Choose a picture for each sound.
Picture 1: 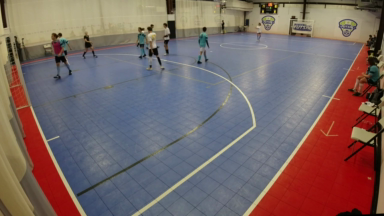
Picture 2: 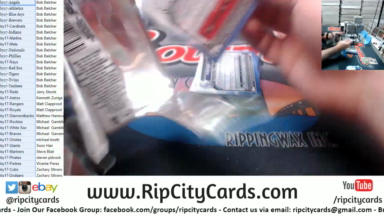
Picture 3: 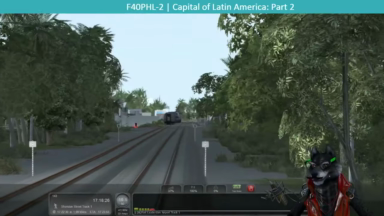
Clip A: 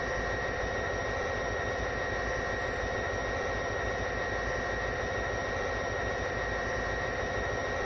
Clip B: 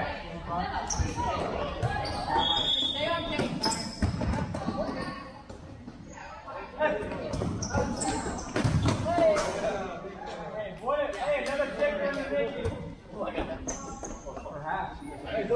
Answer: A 3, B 1